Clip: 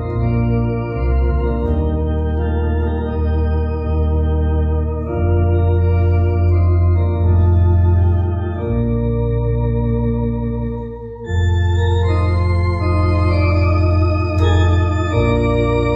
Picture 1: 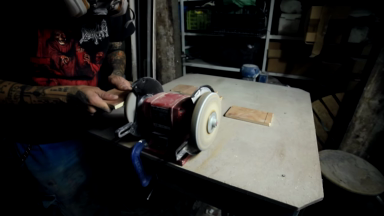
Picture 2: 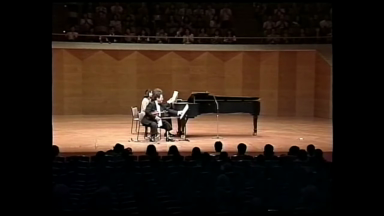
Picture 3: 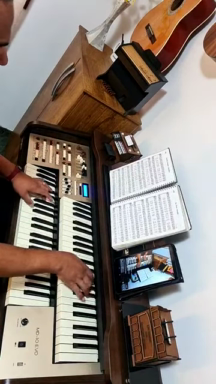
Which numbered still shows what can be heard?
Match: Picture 3